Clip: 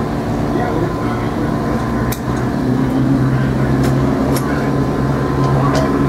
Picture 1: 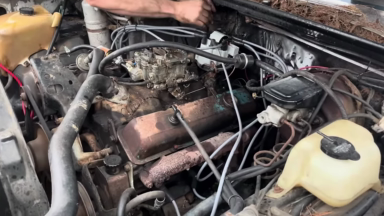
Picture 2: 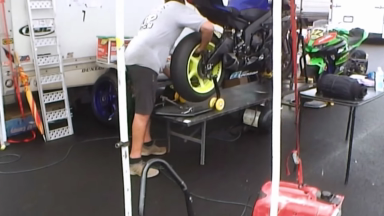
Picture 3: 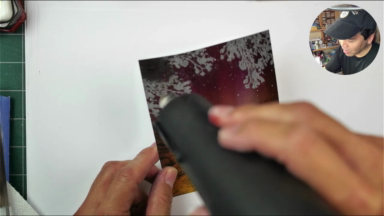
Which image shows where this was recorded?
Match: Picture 2